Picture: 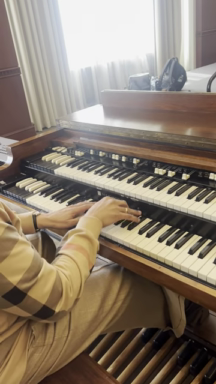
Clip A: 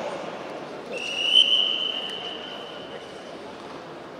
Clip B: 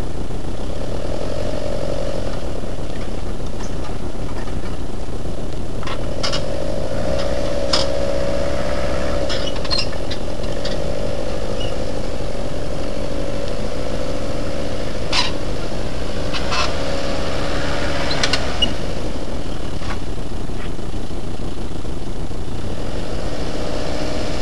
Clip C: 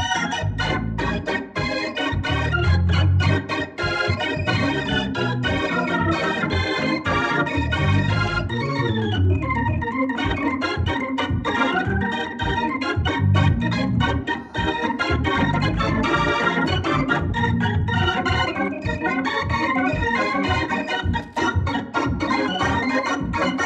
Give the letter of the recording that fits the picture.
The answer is C